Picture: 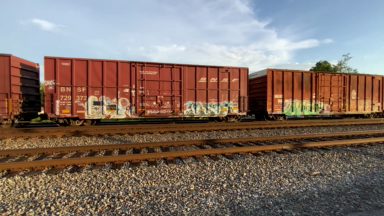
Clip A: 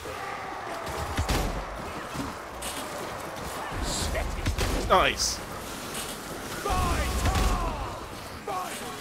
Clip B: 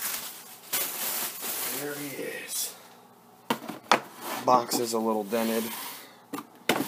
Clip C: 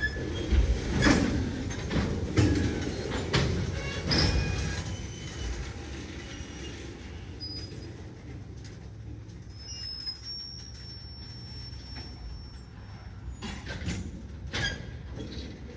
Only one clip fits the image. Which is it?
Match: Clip C